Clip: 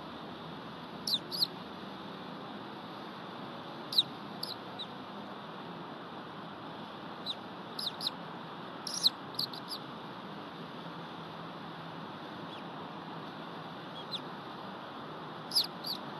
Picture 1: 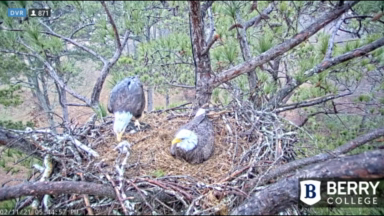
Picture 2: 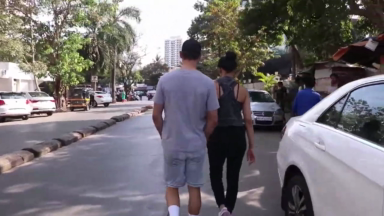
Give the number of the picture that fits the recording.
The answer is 1